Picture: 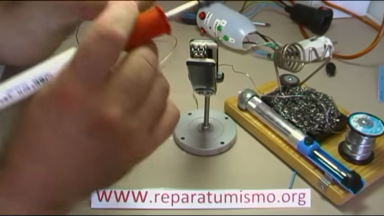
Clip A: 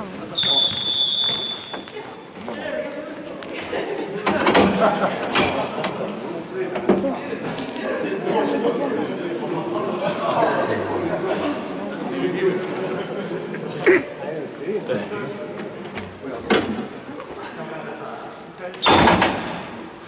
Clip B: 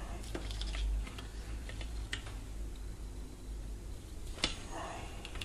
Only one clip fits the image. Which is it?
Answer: B